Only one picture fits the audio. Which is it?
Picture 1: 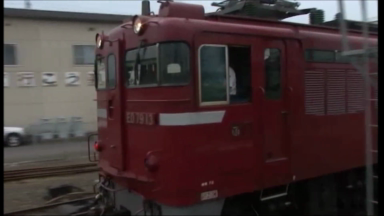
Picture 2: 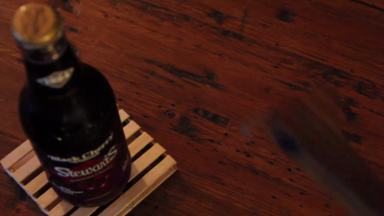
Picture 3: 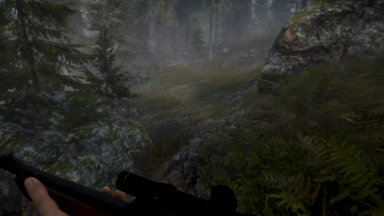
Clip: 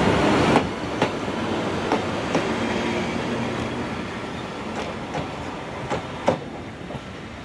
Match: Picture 1